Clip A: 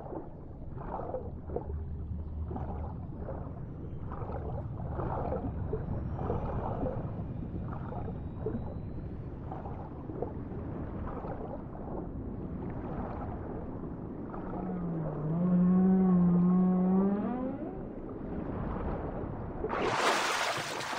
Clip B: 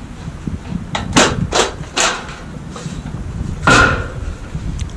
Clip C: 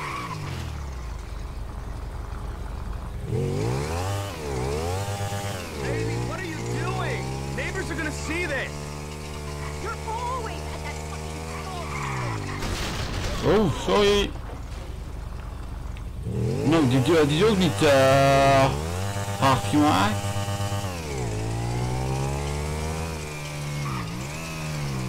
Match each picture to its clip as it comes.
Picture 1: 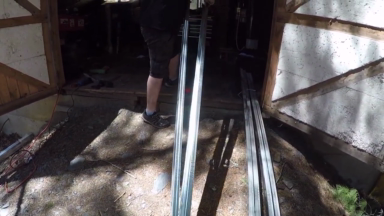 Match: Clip B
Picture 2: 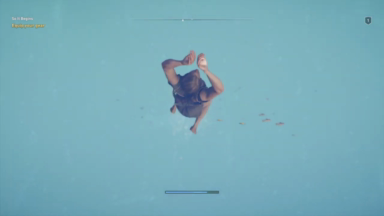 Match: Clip A